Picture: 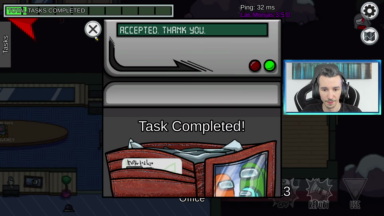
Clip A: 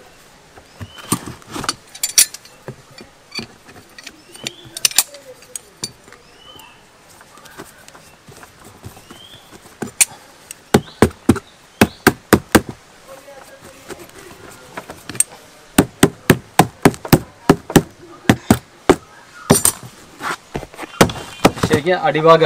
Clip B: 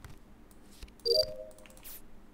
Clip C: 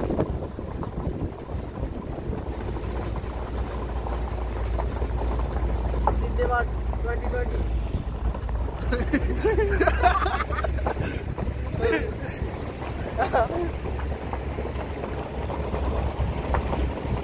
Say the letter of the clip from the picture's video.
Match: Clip B